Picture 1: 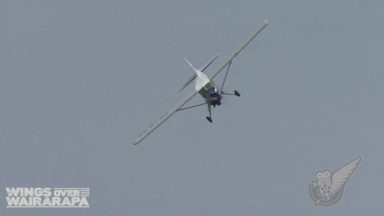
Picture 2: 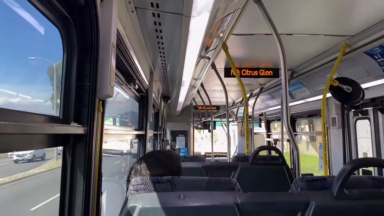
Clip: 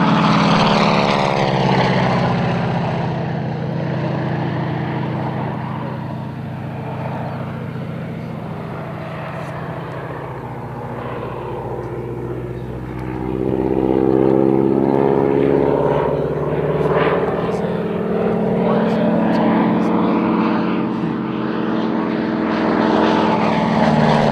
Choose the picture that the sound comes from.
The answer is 1